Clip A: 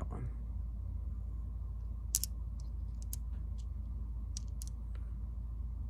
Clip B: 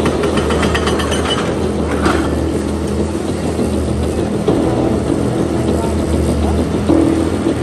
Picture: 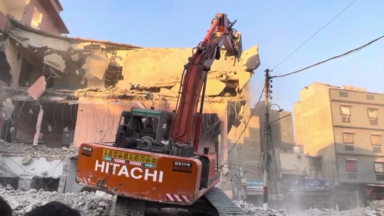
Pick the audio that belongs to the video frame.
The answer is B